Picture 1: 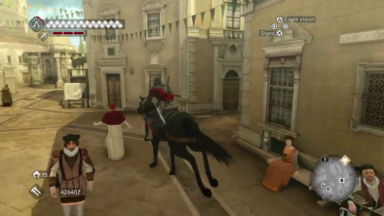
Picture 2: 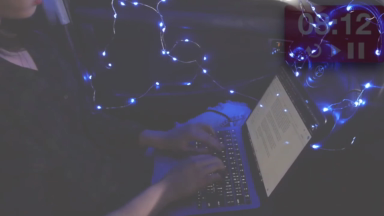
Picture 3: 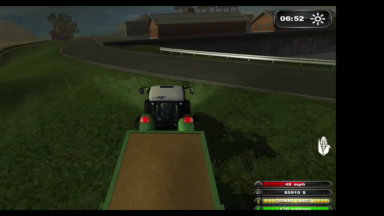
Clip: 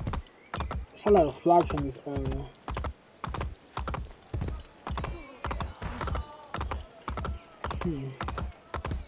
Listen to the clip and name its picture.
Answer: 1